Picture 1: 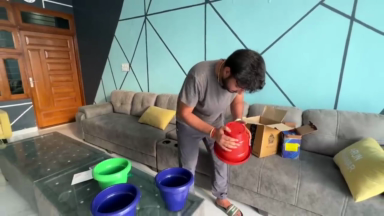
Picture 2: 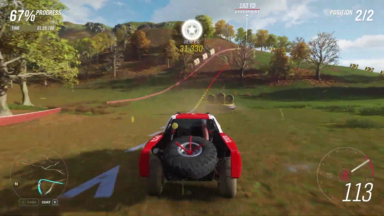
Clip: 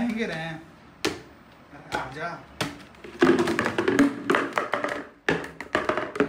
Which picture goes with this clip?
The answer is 1